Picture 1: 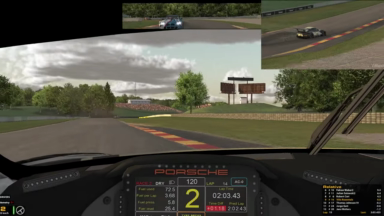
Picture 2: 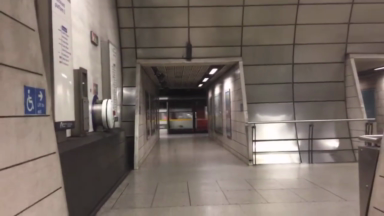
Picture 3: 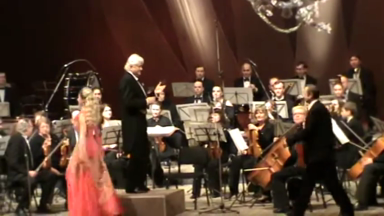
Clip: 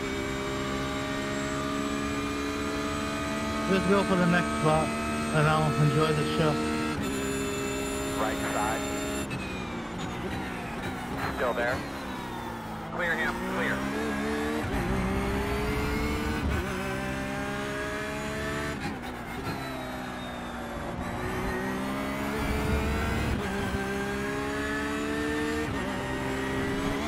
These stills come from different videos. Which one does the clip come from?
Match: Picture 1